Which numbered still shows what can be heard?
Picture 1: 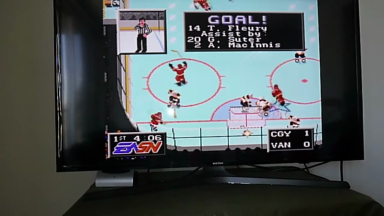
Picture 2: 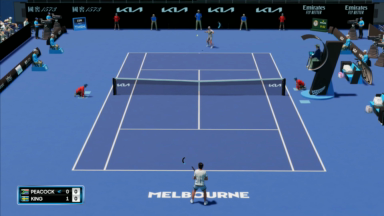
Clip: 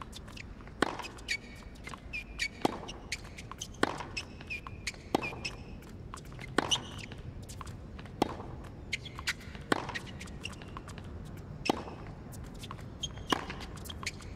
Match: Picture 2